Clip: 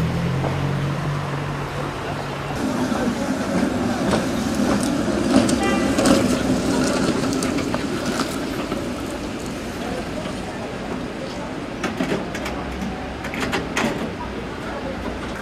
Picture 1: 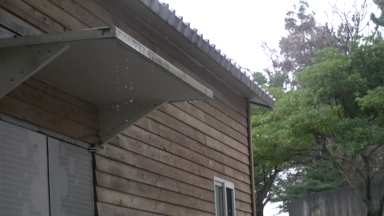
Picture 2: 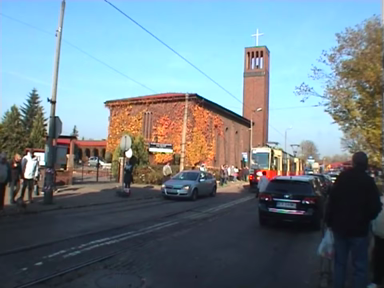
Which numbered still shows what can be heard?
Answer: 2